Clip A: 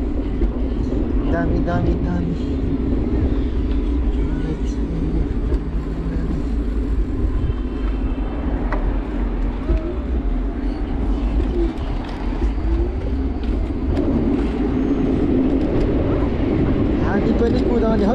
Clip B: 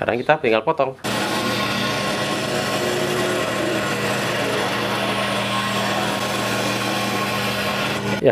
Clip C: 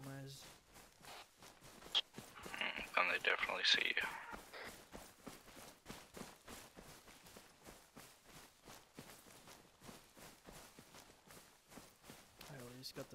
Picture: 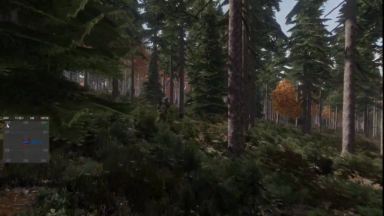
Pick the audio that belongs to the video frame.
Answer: C